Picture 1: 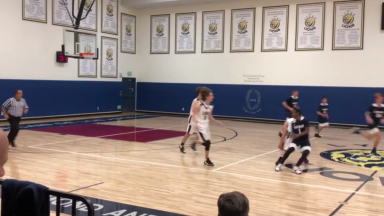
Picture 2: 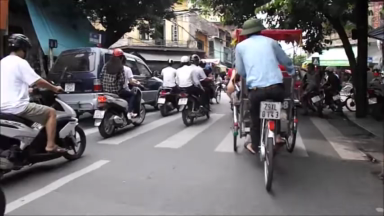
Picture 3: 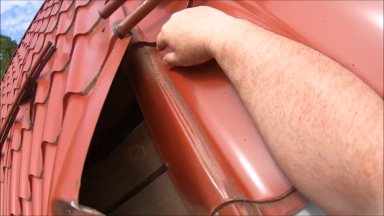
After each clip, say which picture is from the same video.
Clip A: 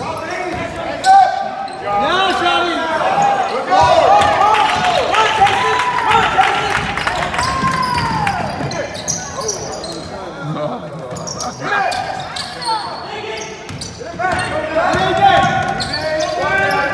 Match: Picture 1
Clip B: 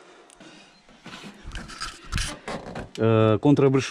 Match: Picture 3